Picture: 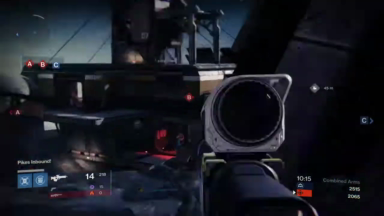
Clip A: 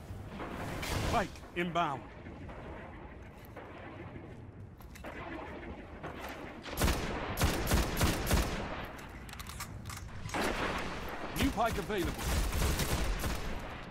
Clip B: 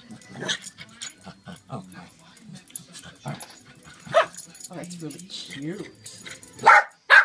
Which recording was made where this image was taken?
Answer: A